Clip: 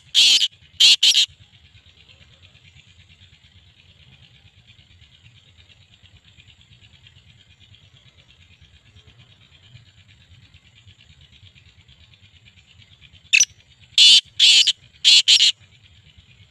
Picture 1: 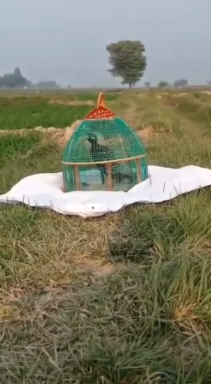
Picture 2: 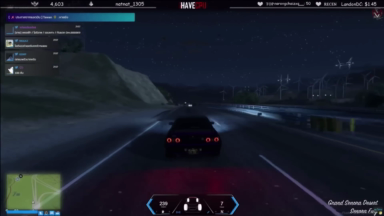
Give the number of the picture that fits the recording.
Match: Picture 1